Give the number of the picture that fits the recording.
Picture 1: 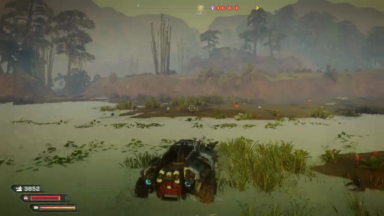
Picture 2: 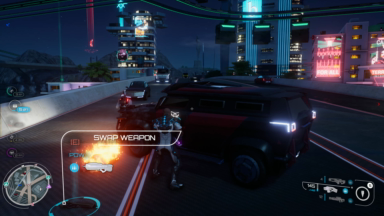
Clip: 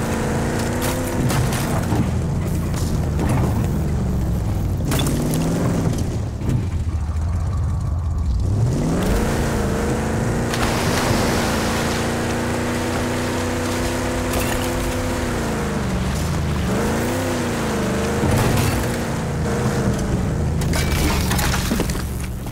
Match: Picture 1